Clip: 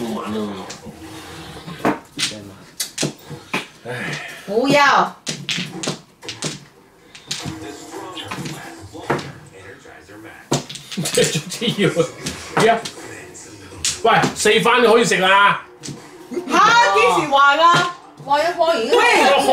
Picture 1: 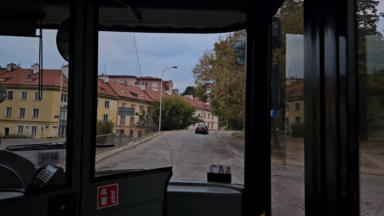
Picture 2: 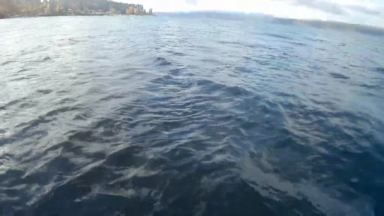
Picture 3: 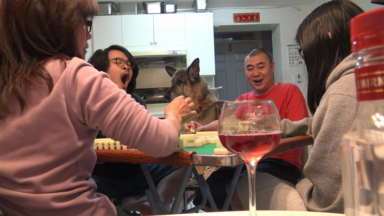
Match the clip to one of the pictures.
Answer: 3